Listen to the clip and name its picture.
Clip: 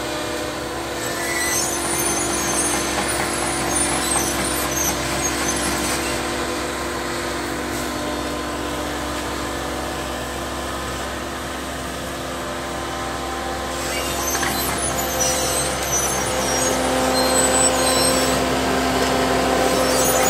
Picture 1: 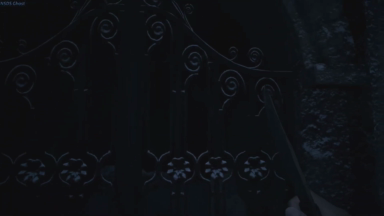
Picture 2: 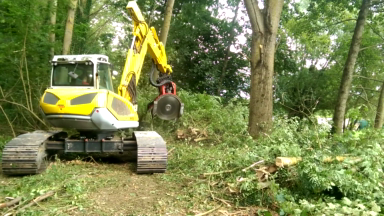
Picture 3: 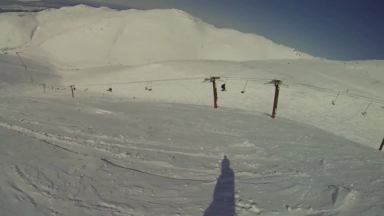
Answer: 2